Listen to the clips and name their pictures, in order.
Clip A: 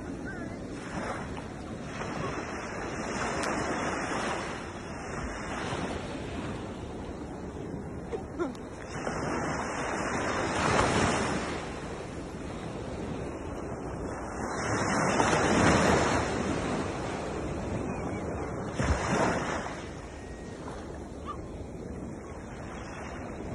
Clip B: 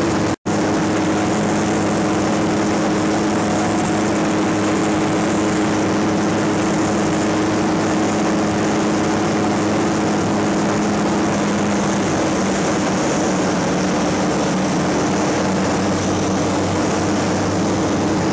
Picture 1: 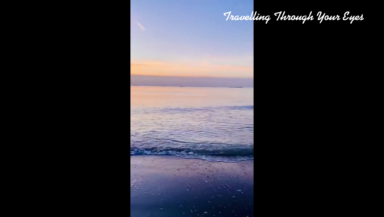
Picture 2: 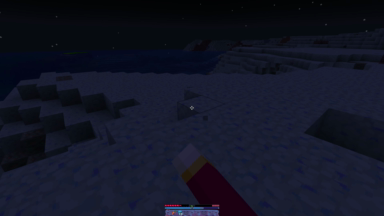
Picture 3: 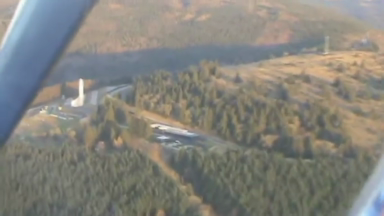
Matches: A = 1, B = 3